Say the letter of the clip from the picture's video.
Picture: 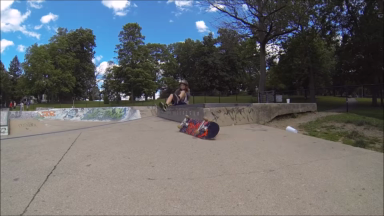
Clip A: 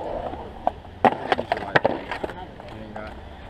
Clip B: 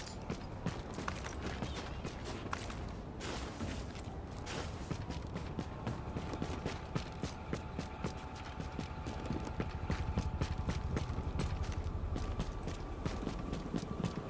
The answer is A